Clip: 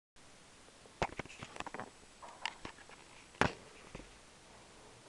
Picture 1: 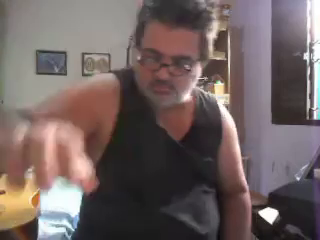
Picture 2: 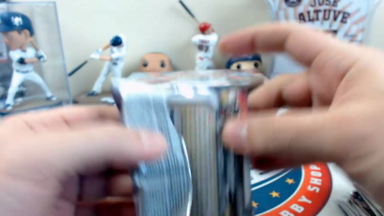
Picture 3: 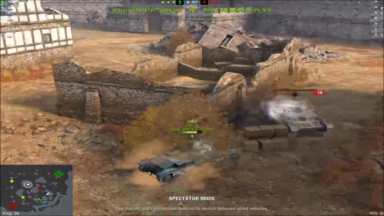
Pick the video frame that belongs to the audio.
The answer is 1